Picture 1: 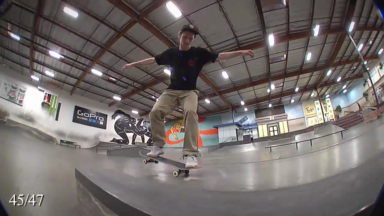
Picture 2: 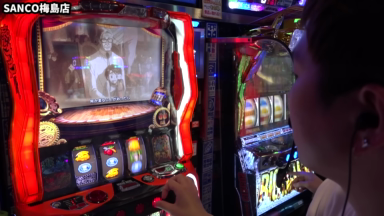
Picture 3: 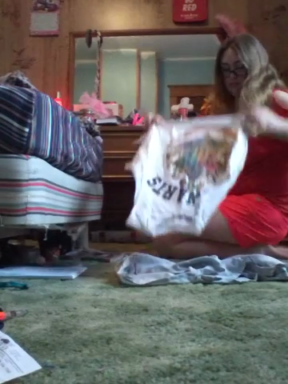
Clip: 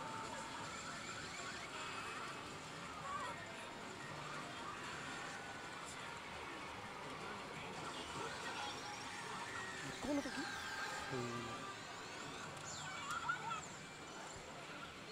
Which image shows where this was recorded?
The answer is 2